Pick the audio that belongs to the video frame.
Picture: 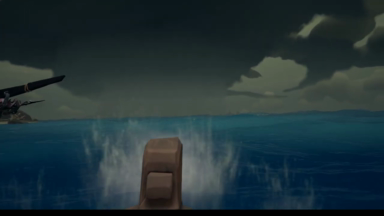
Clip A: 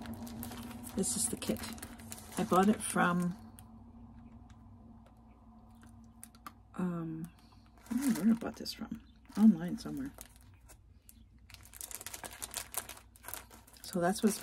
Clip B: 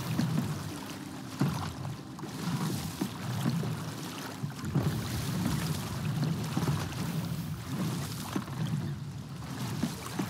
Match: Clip B